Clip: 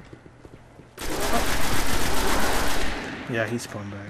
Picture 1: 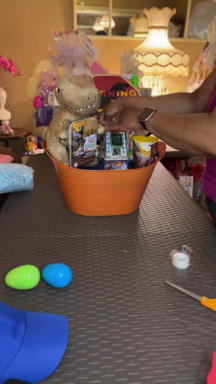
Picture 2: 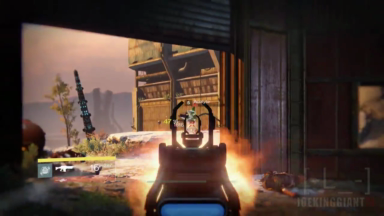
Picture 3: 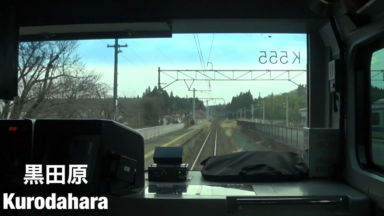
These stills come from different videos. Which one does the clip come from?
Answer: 2